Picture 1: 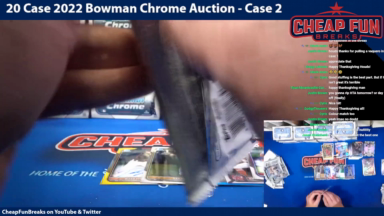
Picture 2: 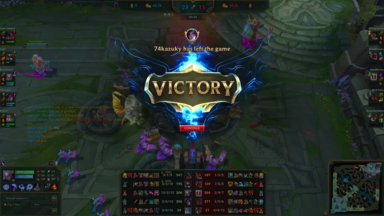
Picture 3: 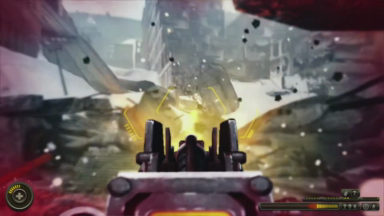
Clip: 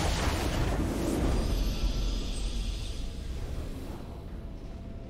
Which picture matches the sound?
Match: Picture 2